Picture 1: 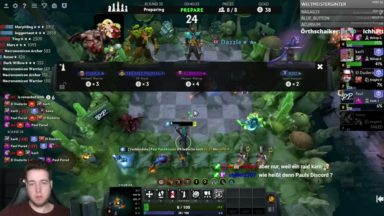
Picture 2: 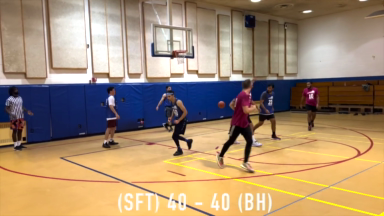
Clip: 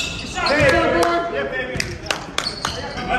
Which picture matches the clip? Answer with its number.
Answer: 2